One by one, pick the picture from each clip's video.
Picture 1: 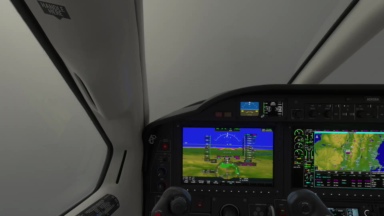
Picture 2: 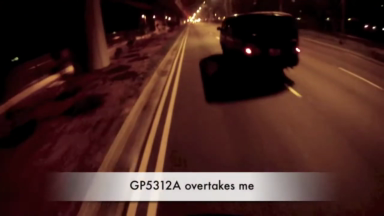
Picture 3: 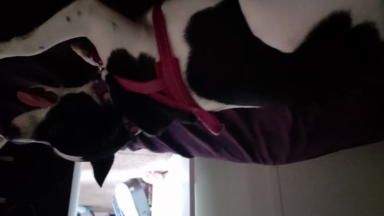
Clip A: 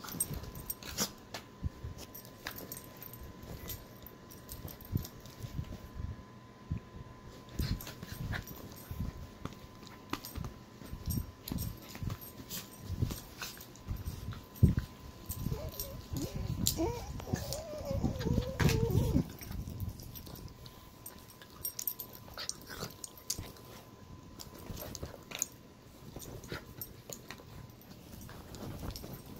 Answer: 3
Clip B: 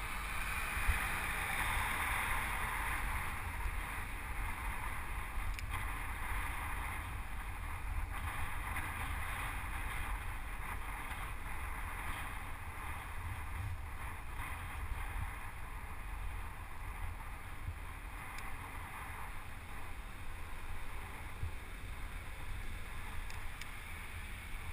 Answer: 2